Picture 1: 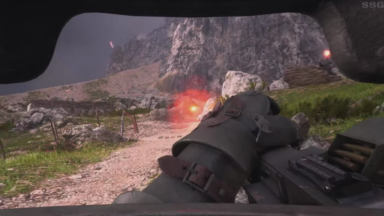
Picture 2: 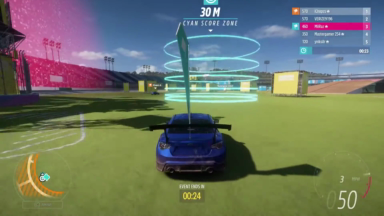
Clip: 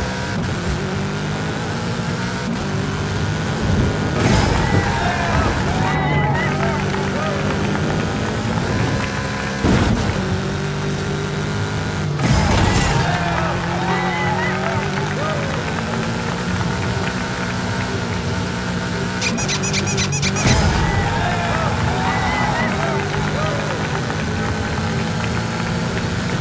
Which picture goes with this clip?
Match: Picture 2